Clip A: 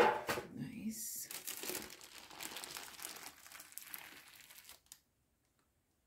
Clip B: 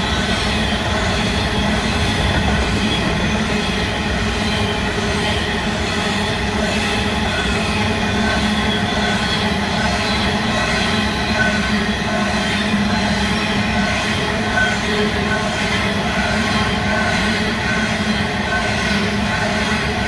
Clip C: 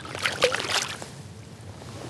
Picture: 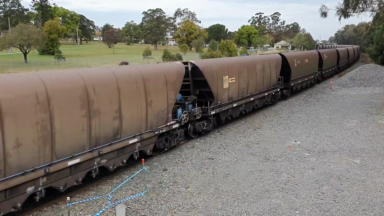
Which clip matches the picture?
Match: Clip B